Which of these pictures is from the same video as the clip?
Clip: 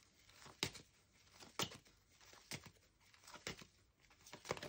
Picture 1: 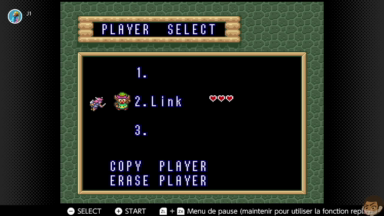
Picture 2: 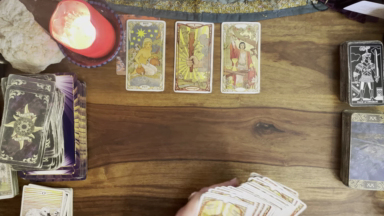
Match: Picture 2